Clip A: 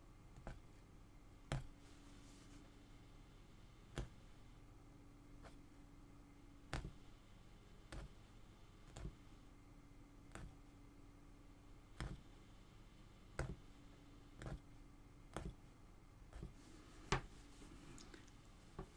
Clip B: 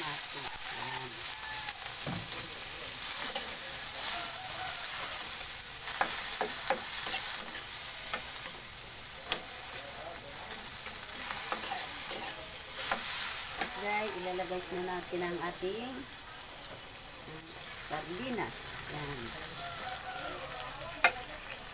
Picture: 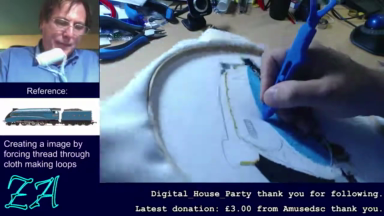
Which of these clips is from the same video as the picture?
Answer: A